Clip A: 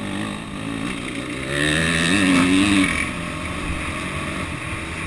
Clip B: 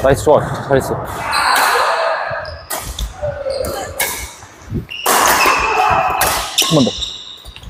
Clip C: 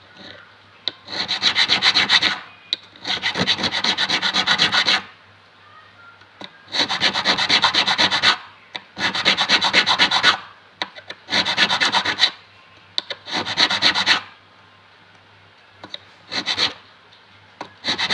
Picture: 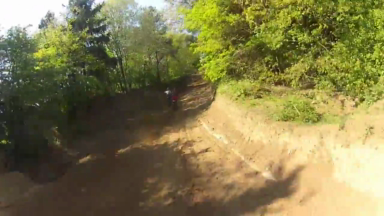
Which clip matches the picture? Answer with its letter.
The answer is A